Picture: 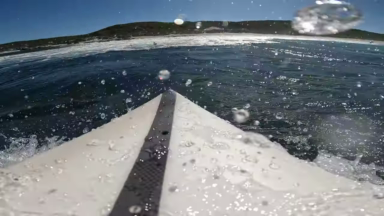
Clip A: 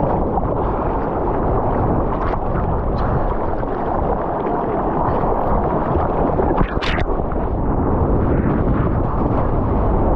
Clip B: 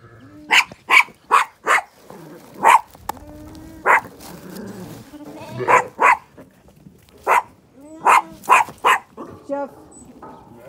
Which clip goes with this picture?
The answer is A